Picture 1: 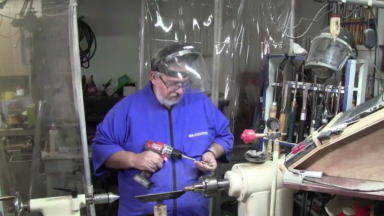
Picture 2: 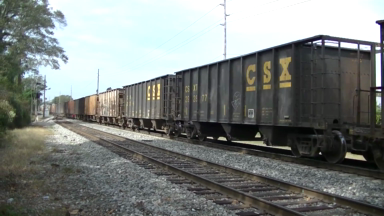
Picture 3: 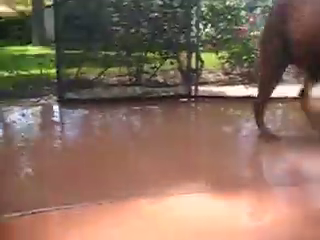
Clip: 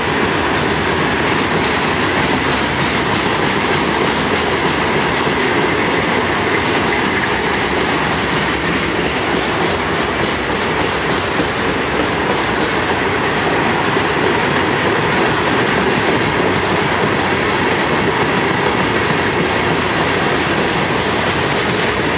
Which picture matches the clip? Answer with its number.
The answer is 2